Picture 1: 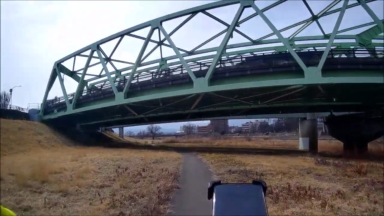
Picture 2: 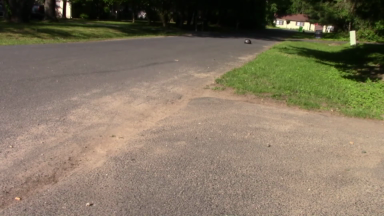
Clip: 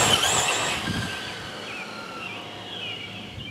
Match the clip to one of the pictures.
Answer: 2